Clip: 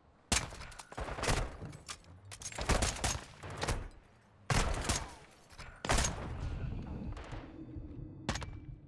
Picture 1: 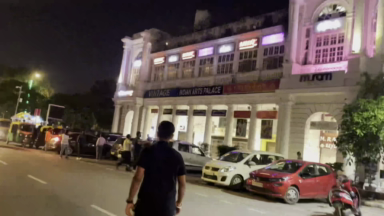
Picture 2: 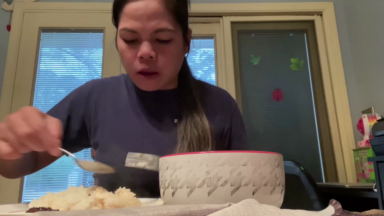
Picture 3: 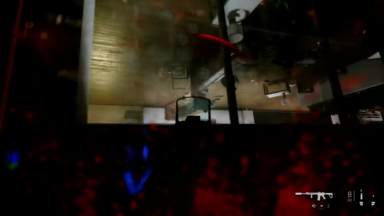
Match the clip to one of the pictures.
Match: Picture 3